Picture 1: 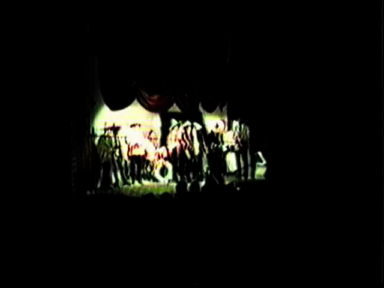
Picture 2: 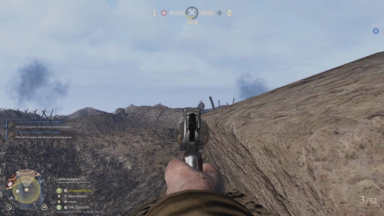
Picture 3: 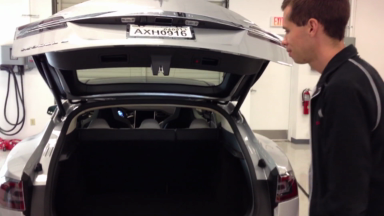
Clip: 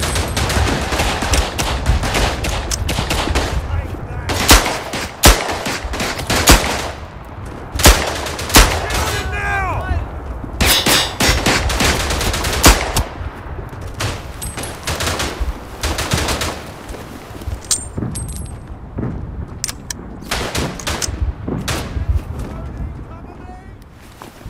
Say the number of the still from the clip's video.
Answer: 2